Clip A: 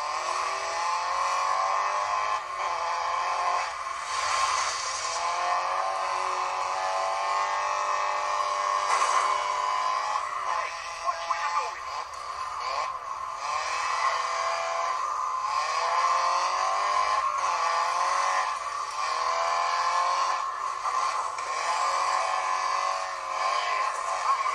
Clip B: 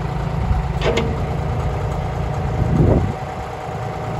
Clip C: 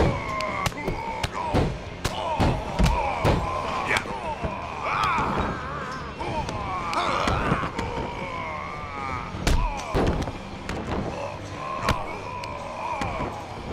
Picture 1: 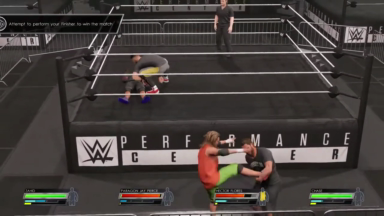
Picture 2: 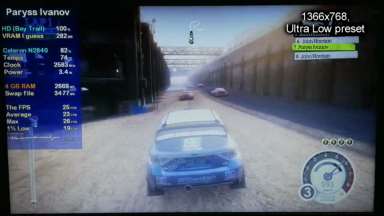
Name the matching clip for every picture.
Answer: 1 C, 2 A